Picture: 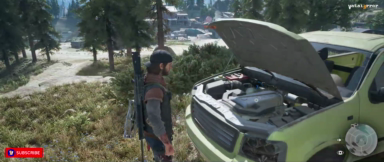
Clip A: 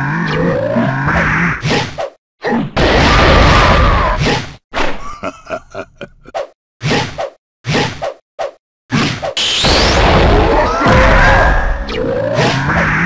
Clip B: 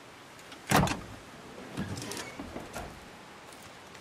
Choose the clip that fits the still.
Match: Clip B